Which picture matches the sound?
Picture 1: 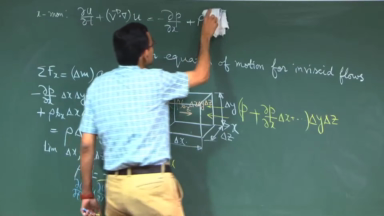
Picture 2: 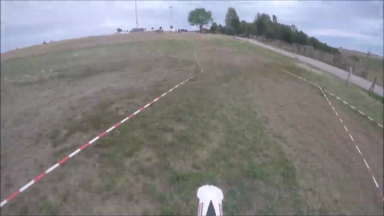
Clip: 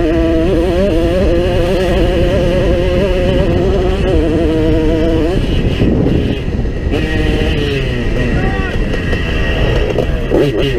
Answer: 2